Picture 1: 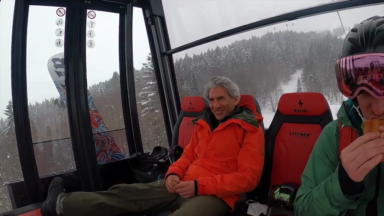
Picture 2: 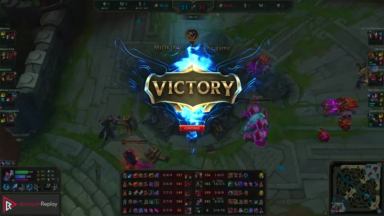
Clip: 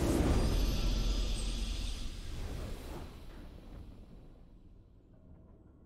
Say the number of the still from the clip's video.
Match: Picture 2